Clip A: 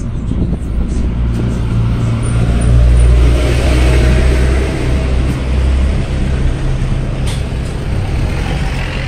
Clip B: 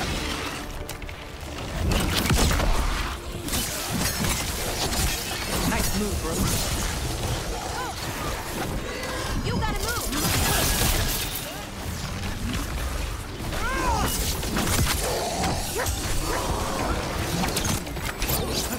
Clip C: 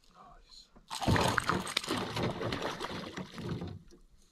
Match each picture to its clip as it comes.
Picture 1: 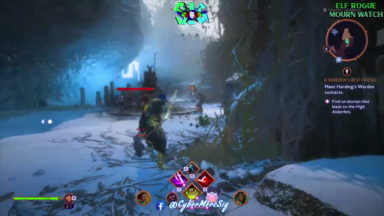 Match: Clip B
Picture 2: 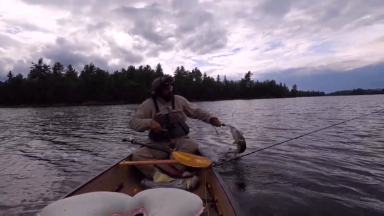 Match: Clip C